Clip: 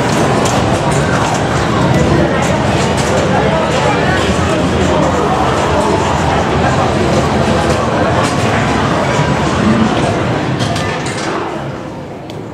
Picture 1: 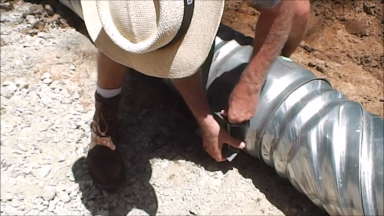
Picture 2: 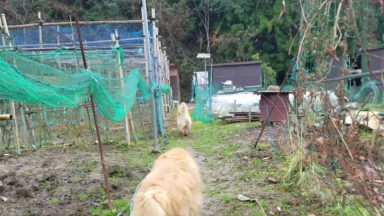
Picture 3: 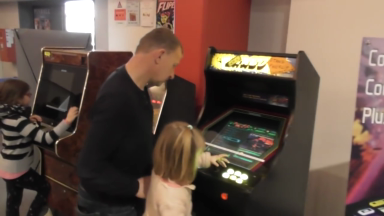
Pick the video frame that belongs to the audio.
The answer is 3